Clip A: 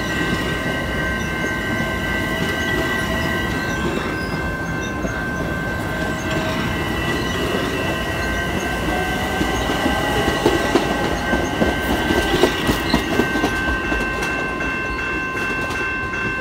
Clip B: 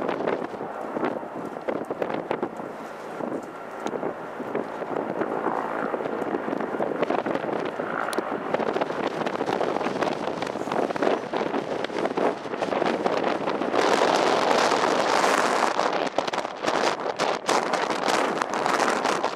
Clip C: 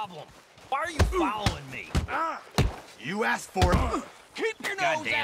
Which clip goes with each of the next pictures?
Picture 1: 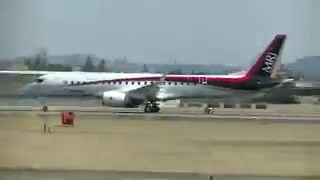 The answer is B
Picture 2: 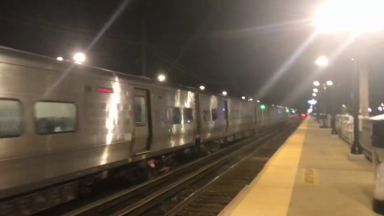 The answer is A